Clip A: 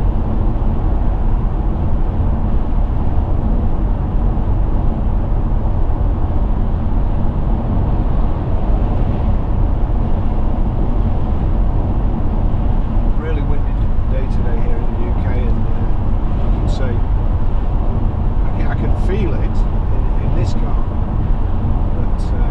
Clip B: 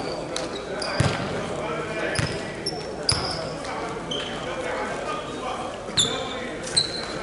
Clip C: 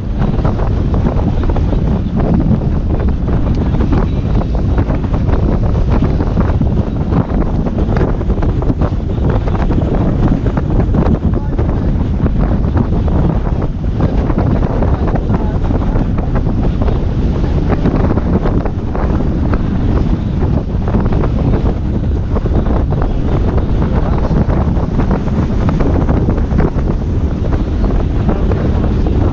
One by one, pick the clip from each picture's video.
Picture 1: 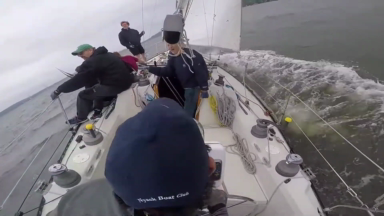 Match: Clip C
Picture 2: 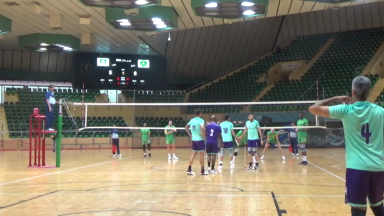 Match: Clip B